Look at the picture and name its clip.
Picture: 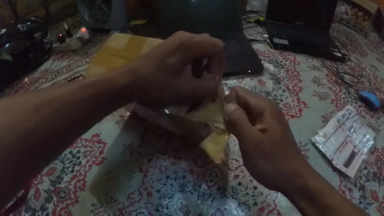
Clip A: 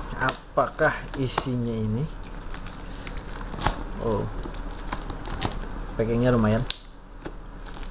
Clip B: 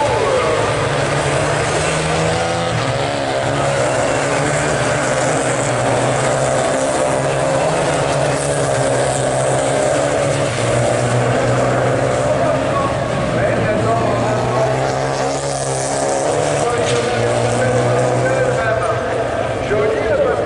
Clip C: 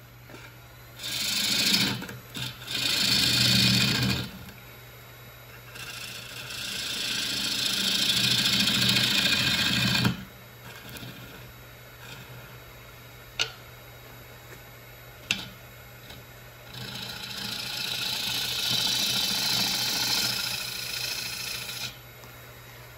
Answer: A